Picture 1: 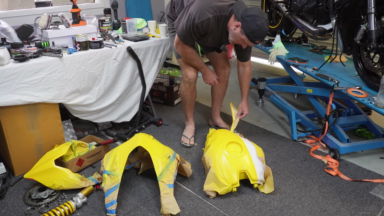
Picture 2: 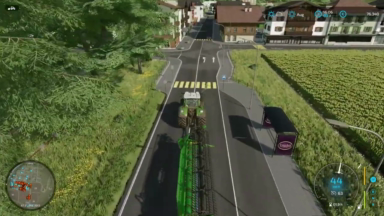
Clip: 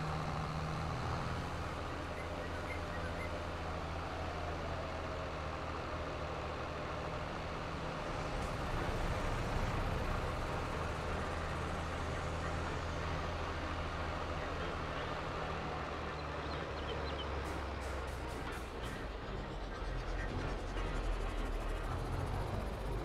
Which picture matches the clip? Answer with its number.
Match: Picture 2